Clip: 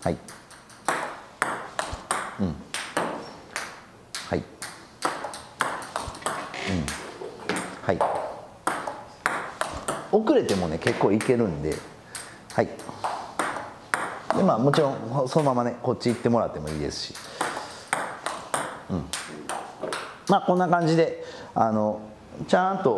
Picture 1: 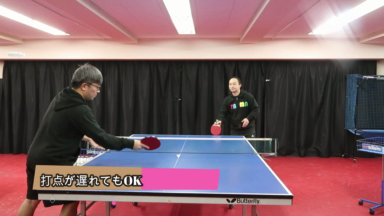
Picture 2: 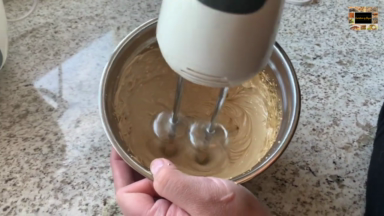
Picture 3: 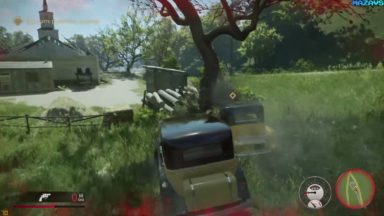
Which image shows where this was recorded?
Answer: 1